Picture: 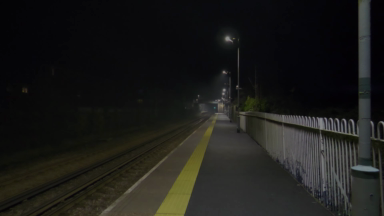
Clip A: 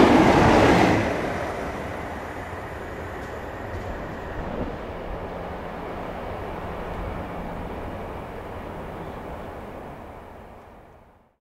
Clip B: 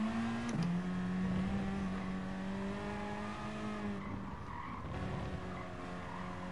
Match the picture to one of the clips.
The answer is A